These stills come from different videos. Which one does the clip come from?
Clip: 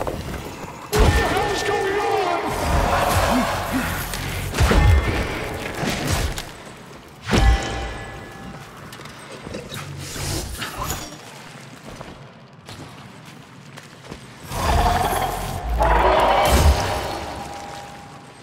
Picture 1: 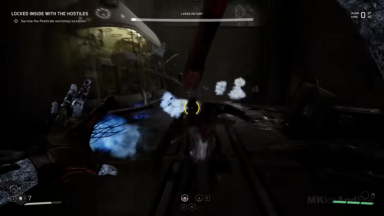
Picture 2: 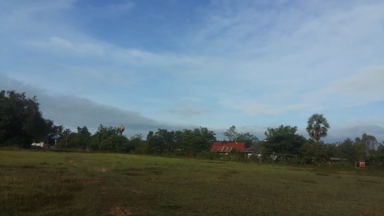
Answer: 1